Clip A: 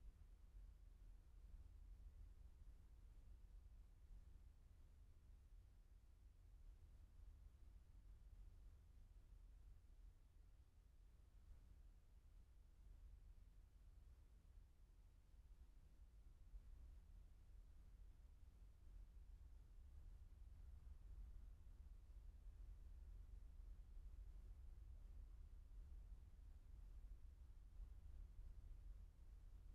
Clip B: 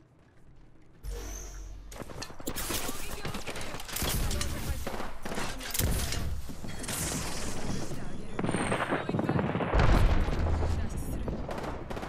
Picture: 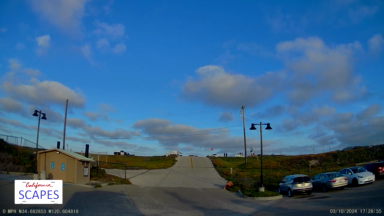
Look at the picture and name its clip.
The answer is A